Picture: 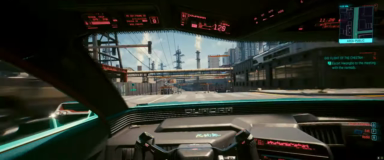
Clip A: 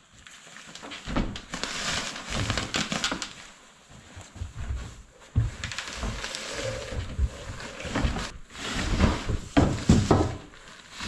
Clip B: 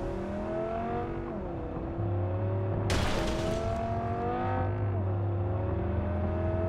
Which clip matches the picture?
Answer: B